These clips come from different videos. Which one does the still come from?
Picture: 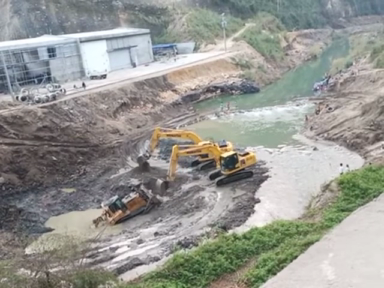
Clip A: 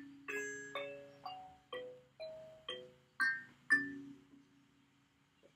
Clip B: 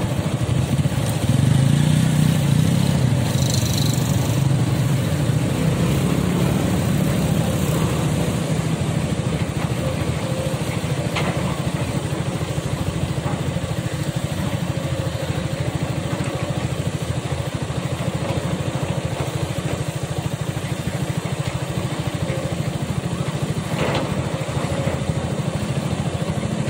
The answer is B